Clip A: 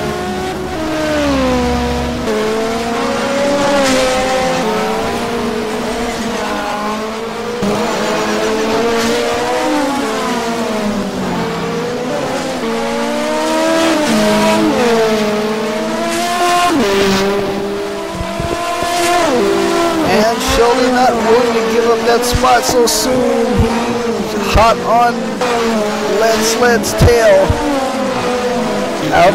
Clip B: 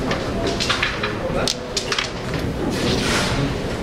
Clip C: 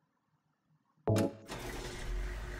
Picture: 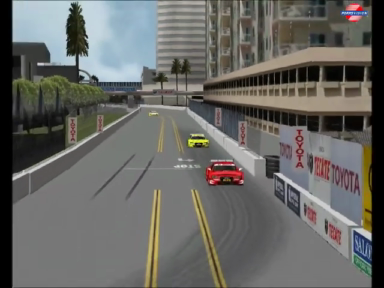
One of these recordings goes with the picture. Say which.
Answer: A